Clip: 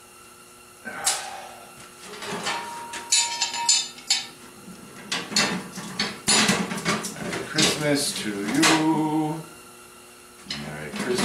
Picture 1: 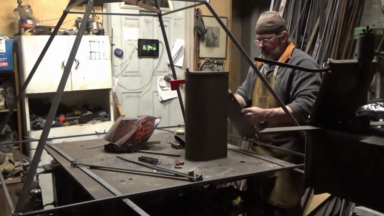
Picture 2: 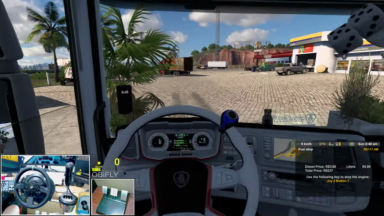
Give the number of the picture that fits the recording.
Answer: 1